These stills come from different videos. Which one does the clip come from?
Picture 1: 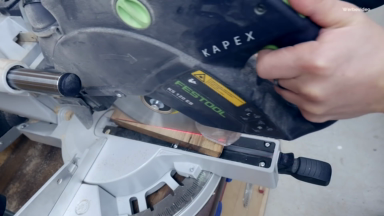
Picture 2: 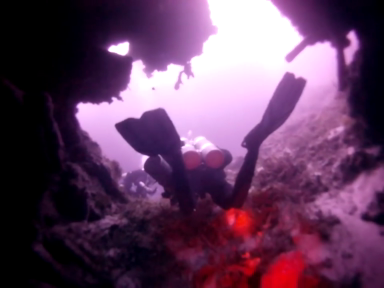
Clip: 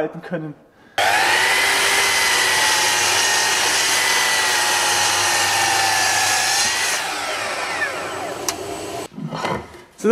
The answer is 1